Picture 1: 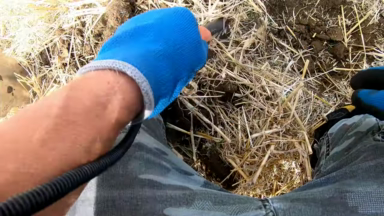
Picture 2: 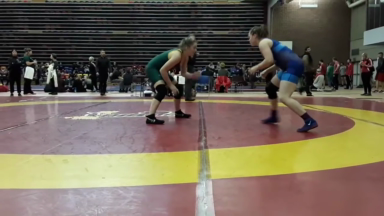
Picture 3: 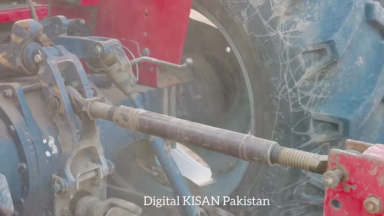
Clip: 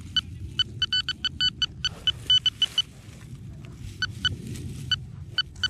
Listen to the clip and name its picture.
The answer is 1